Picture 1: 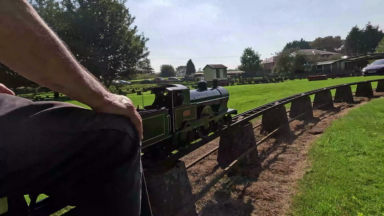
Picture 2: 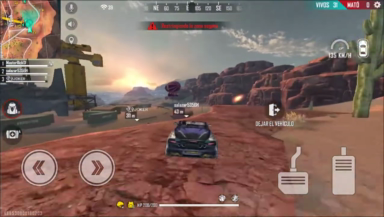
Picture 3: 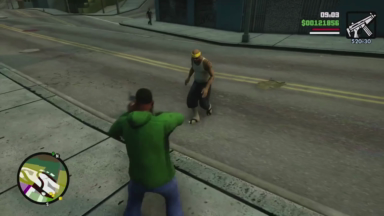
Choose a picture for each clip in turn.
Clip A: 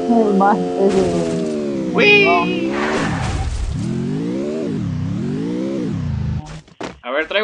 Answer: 2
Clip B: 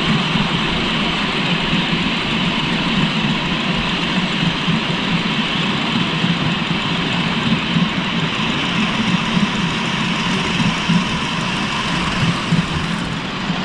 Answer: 1